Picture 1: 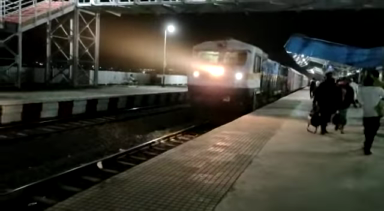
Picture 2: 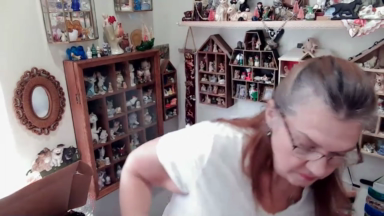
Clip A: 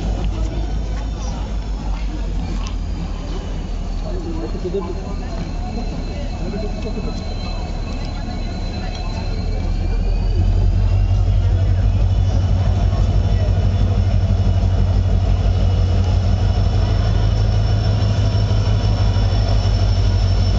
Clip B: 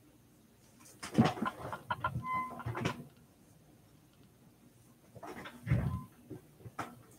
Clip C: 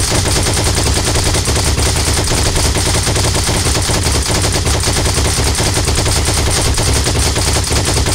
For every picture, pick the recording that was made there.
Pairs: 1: A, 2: B